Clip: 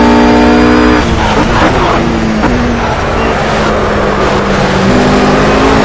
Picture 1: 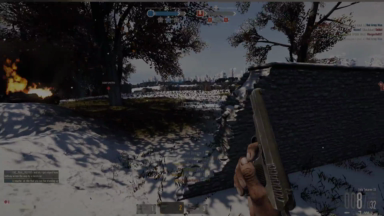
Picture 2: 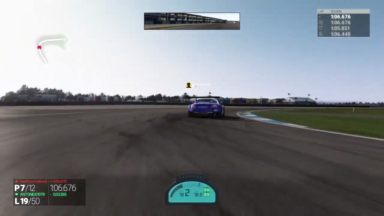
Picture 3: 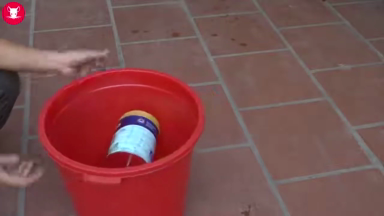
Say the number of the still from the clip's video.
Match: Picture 2